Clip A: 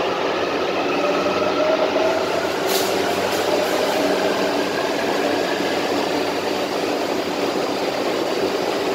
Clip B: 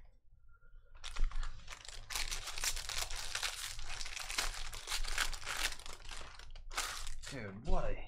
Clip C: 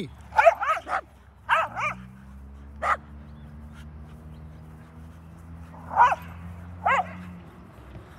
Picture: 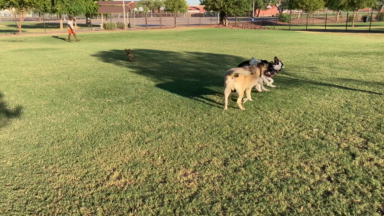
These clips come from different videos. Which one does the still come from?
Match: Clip C